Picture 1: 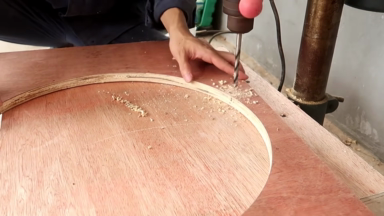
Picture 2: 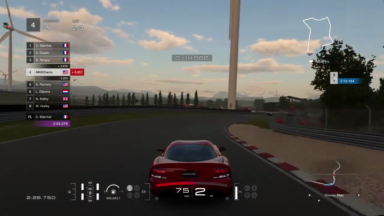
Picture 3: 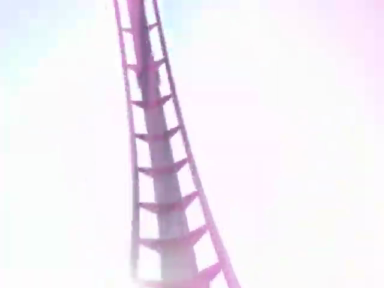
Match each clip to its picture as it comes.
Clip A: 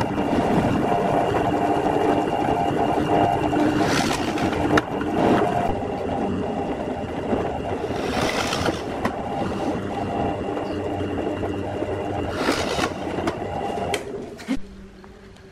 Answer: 1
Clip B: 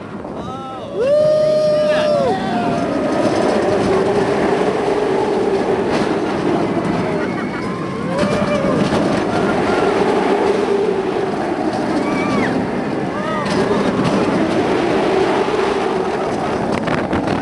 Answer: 3